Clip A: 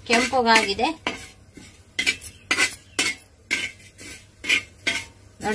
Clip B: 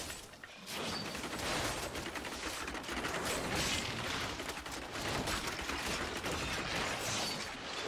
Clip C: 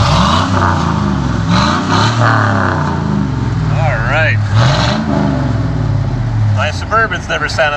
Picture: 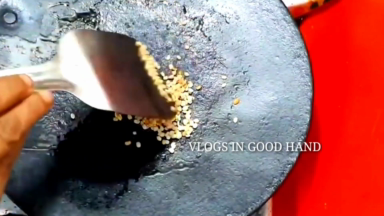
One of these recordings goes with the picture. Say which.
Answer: A